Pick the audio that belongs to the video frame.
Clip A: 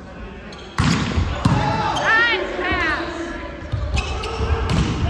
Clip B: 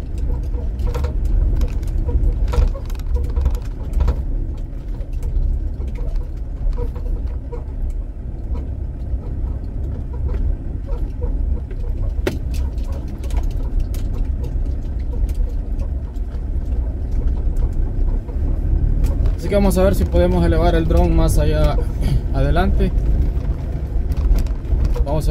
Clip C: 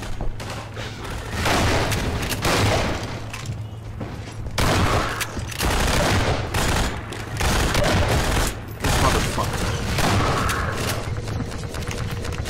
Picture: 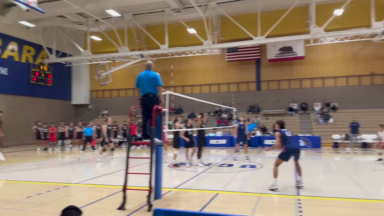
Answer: A